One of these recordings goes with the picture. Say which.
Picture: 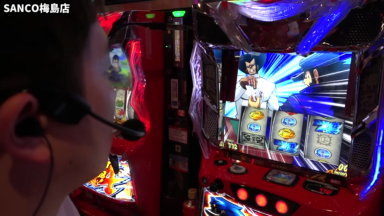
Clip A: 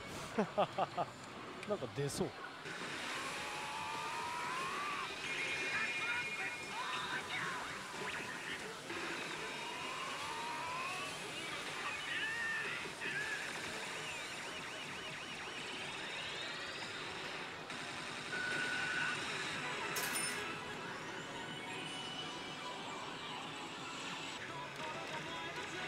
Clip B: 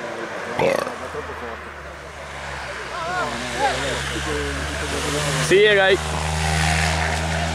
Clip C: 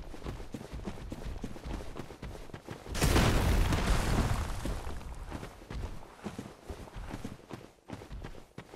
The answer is A